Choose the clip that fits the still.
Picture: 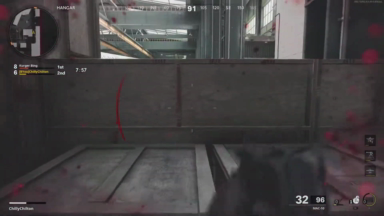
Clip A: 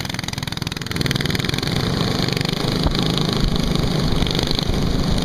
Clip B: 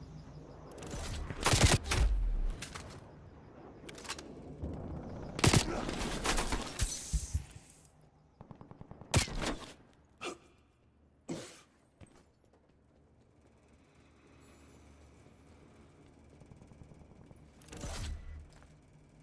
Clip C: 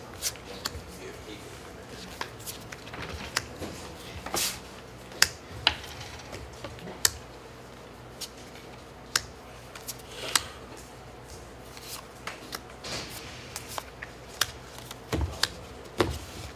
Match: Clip B